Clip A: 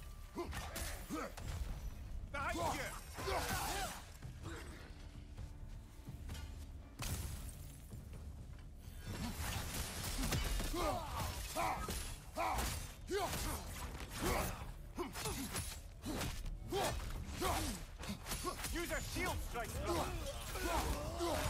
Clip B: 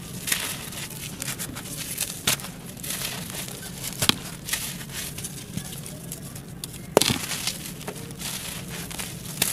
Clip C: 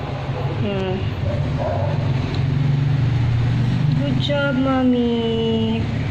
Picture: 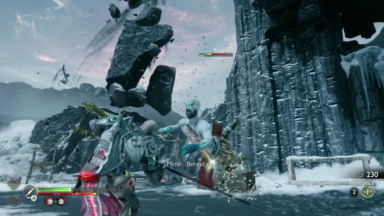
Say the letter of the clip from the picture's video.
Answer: A